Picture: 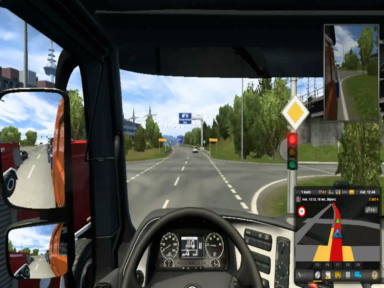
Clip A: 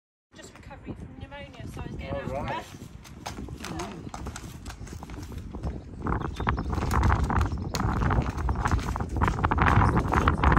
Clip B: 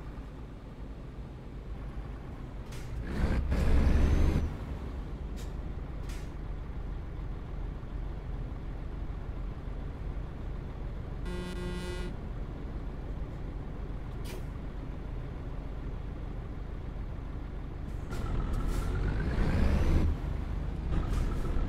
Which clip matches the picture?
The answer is B